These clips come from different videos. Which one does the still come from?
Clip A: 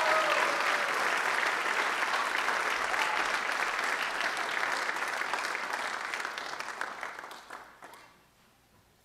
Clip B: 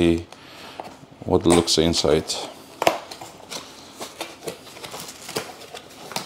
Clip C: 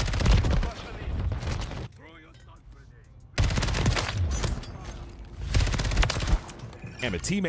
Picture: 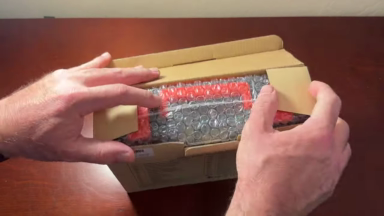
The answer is B